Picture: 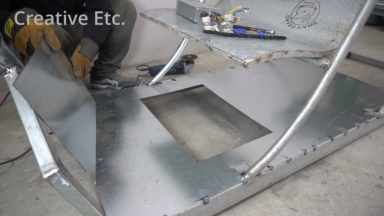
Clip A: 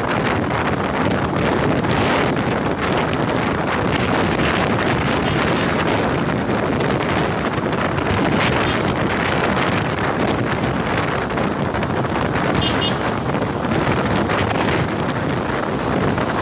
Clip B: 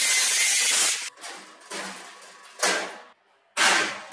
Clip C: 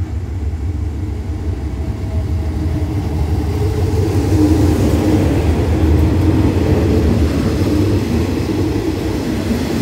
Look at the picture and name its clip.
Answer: B